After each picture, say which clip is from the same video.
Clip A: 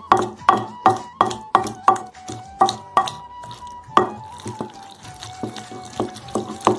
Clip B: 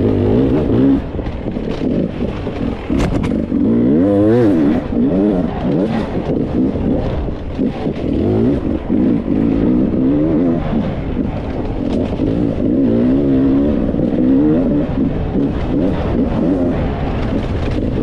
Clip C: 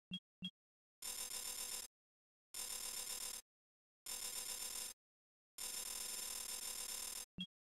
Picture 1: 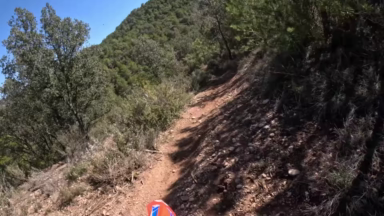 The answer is B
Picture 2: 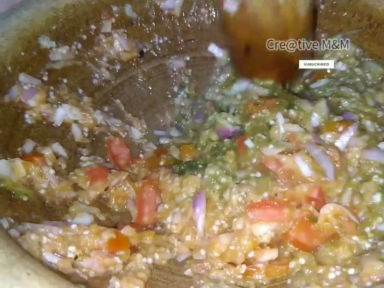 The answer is A